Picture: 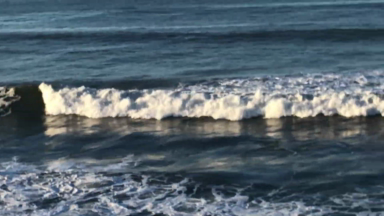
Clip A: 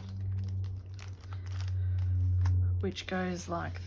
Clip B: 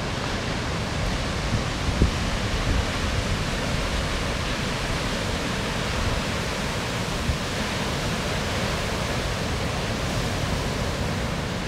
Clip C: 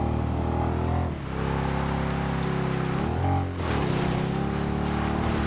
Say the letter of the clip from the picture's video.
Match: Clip B